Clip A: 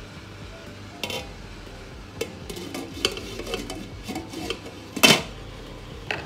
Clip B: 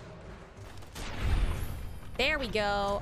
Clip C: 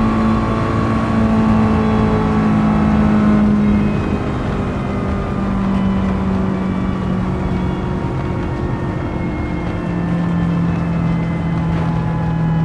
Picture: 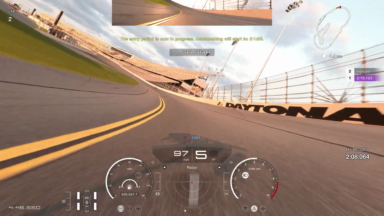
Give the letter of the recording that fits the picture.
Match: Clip C